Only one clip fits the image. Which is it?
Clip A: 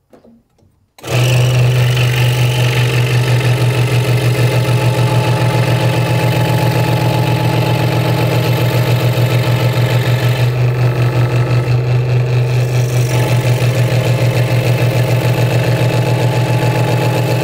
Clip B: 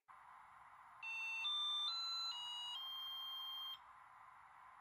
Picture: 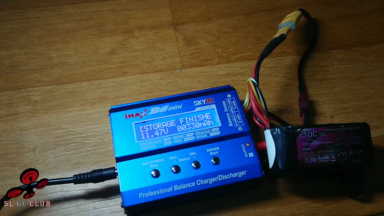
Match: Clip B